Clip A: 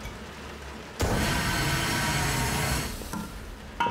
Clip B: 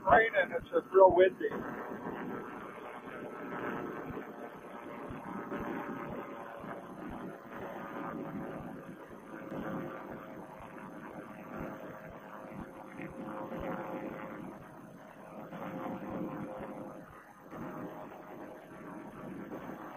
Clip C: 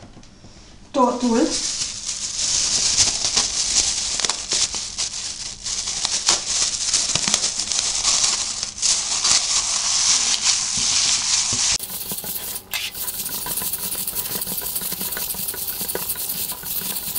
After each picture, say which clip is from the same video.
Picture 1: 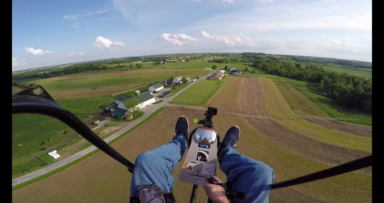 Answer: B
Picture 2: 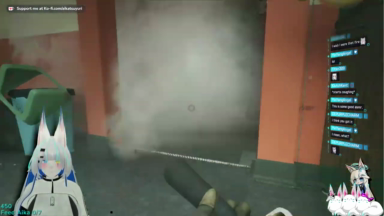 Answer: A